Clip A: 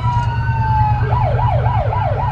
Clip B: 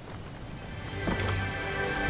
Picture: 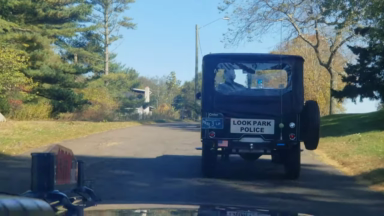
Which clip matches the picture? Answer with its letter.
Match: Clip A